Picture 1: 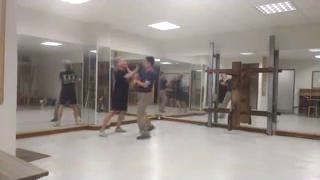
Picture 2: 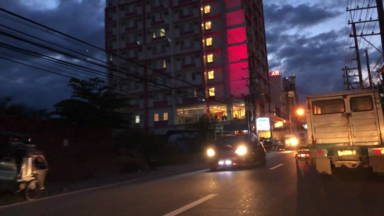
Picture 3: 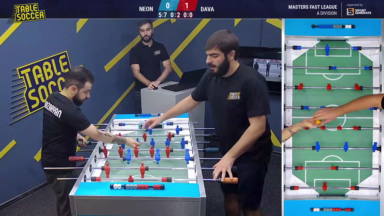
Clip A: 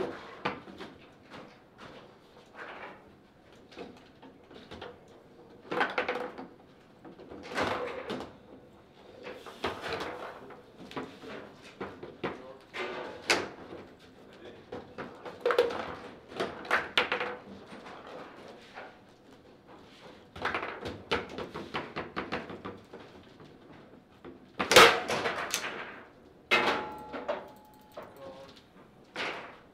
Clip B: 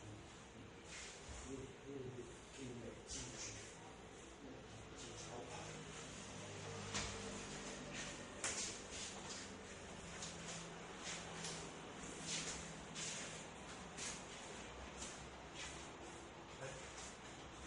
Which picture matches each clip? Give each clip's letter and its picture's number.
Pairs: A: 3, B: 1